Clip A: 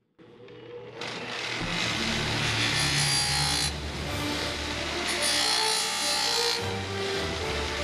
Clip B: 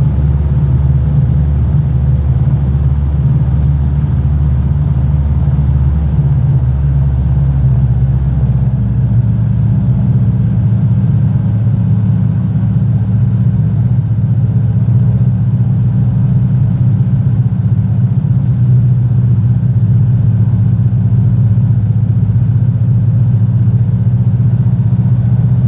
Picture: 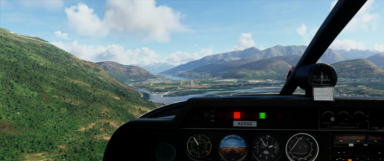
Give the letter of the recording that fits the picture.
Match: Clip B